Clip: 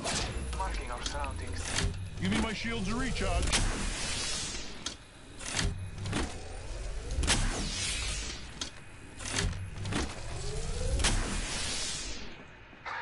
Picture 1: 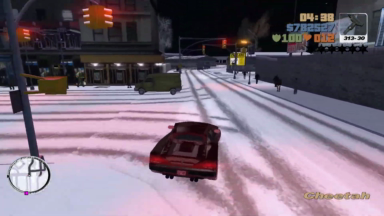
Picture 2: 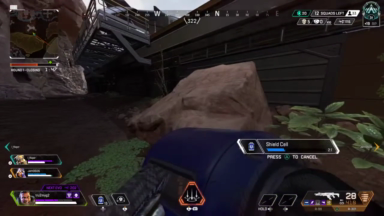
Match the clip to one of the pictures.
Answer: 2